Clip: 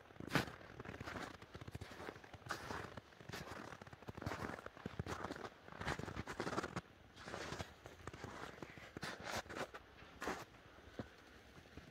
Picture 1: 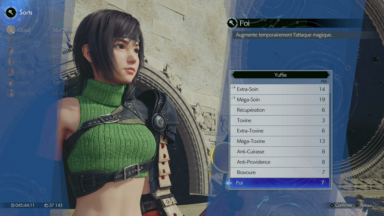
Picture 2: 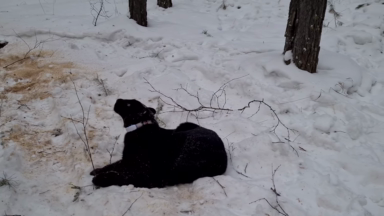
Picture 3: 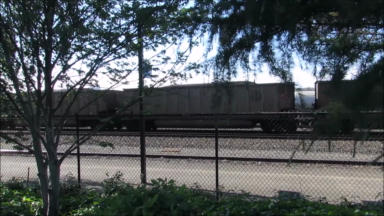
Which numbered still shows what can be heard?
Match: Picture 2